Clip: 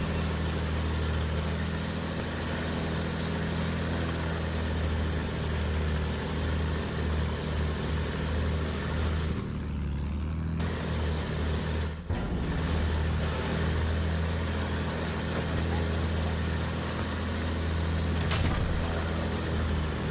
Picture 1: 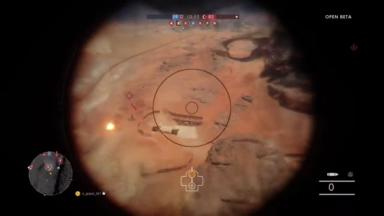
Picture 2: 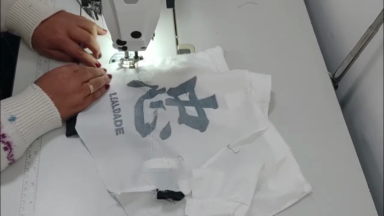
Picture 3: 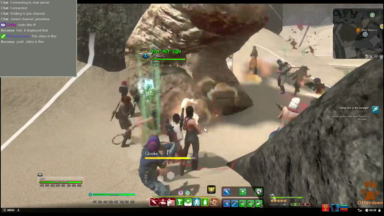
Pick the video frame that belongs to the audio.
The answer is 1